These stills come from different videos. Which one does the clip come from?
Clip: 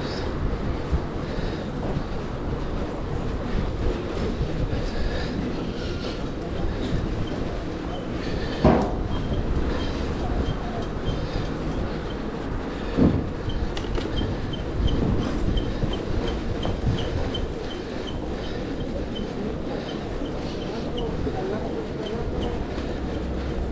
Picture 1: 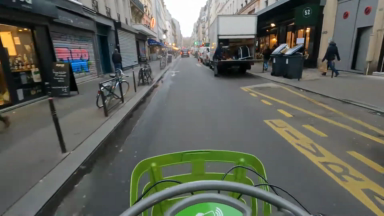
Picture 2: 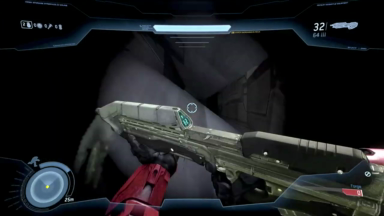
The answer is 1